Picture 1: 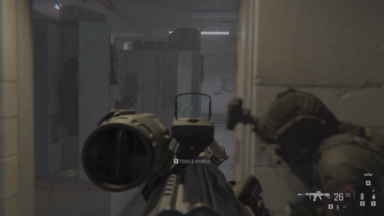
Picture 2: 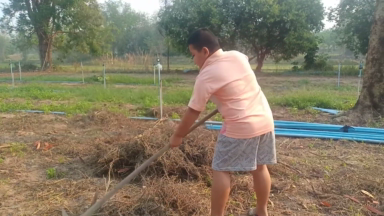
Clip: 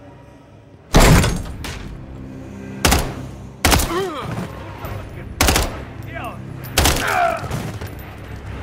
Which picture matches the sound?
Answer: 1